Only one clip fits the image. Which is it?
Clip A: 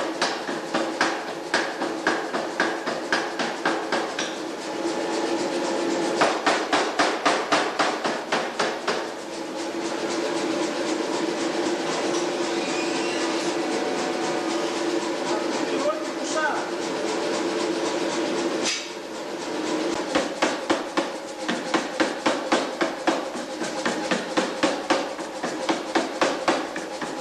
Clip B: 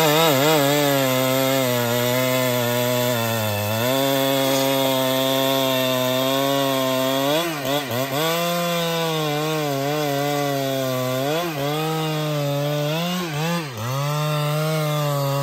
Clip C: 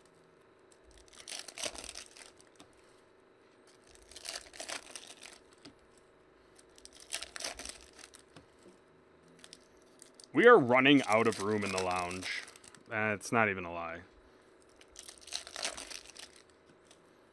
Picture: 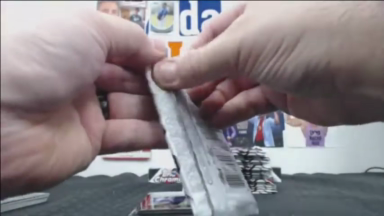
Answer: C